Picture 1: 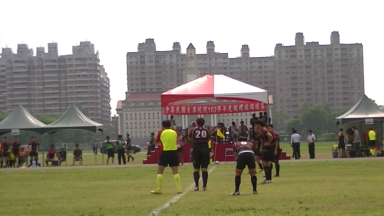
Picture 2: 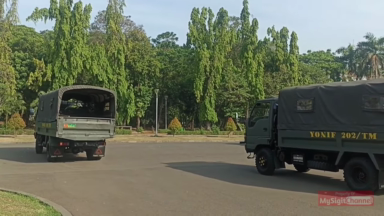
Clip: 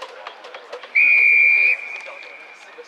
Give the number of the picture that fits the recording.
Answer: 1